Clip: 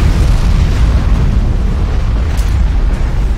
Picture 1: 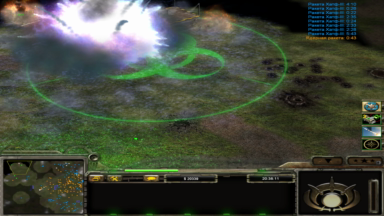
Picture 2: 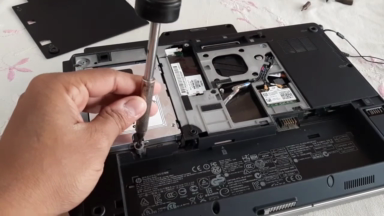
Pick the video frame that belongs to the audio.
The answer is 1